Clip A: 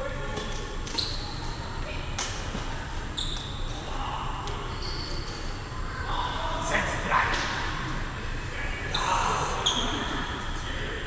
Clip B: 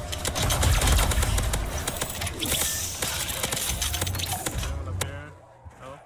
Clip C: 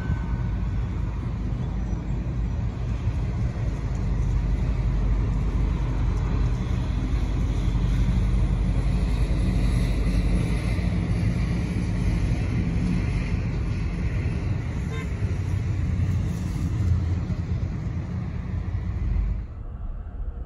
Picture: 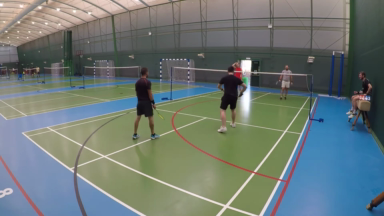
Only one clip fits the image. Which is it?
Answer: A